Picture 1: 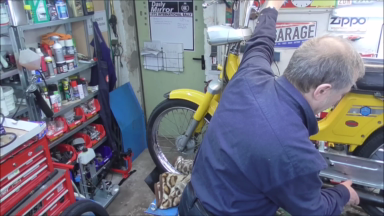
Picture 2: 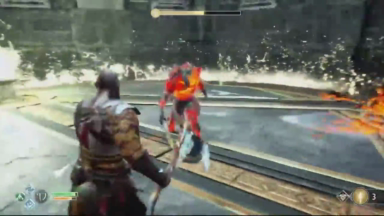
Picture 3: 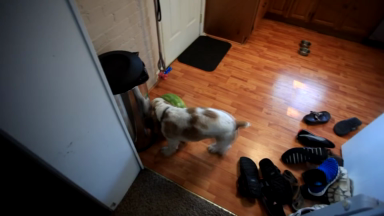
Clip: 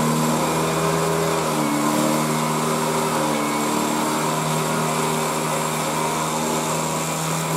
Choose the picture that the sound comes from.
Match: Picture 1